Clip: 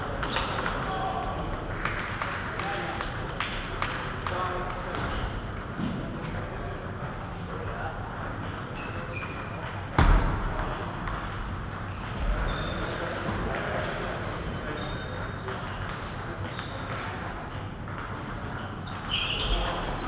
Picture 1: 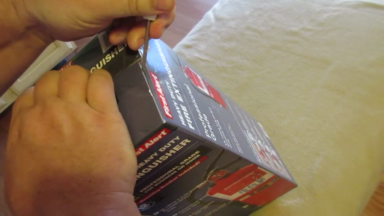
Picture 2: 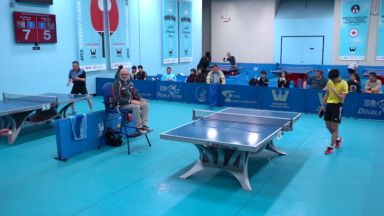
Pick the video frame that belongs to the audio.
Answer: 2